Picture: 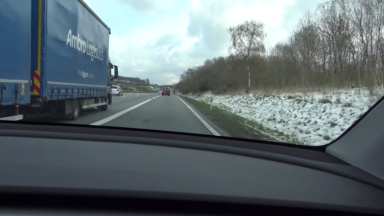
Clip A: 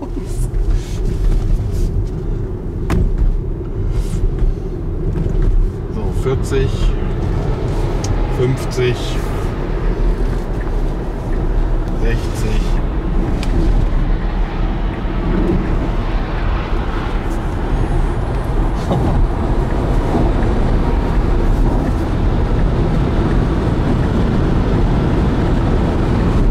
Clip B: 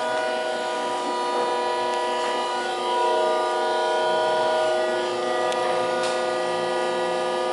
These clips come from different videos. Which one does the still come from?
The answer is A